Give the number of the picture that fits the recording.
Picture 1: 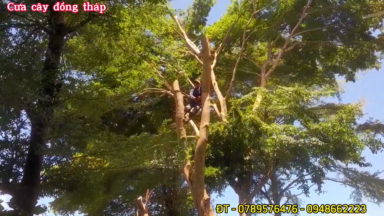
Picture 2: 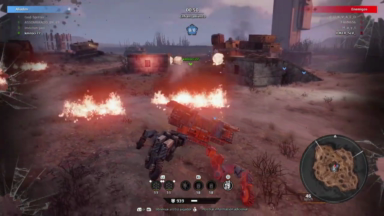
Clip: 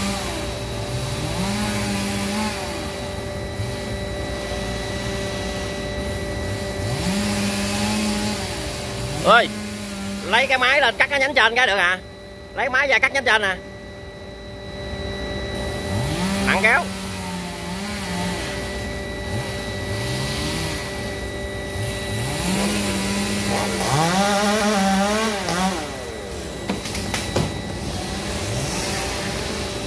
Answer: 1